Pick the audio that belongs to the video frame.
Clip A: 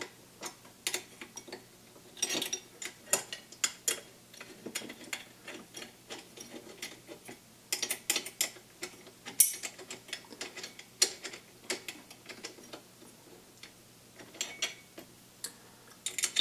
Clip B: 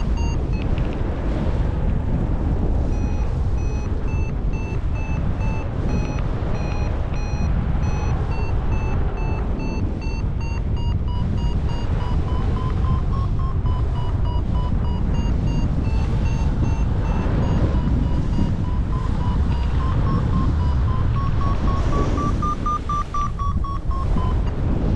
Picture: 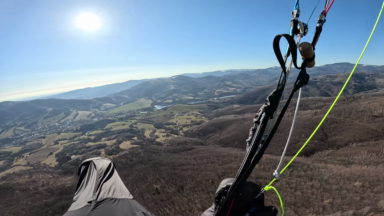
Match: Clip B